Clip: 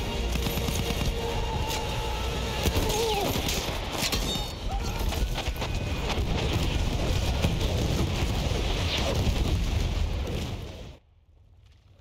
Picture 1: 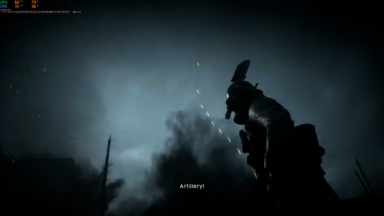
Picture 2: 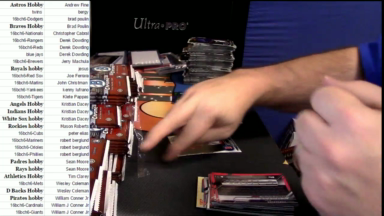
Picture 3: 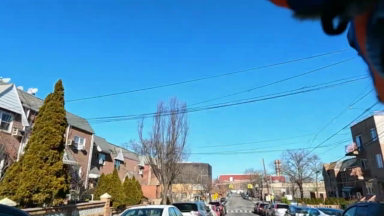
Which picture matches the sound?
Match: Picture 1